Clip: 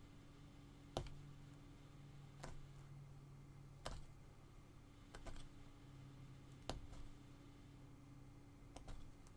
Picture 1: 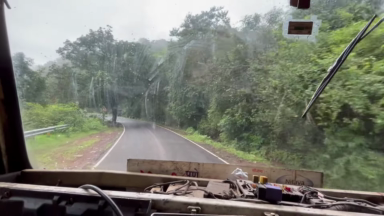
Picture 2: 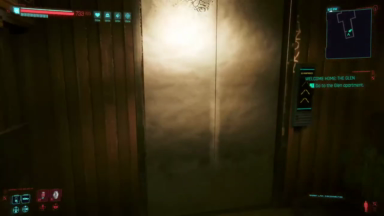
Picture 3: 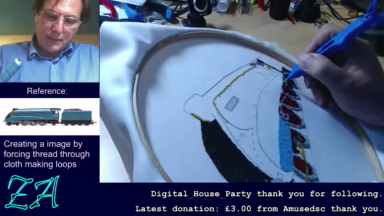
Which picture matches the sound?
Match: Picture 3